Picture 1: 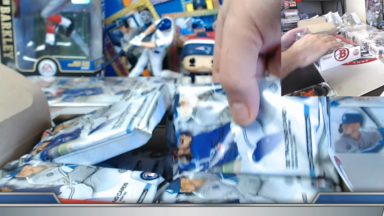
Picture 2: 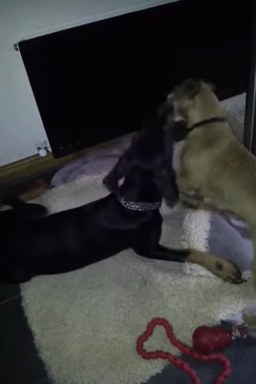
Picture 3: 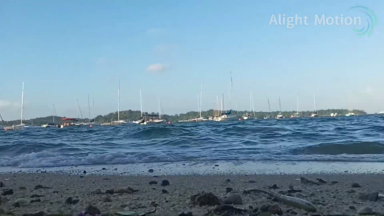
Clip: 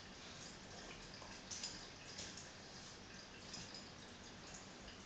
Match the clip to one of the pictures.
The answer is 2